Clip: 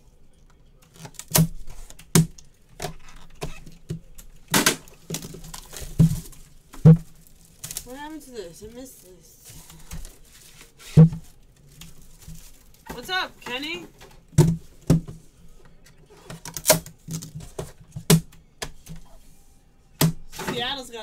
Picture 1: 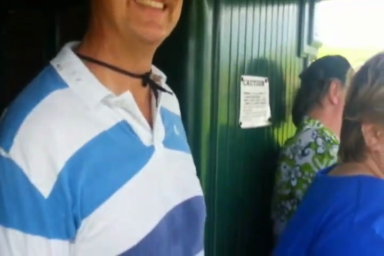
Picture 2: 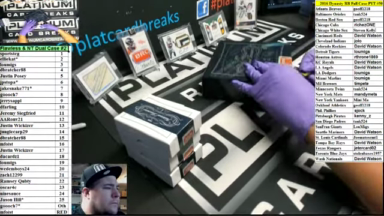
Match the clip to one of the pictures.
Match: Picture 2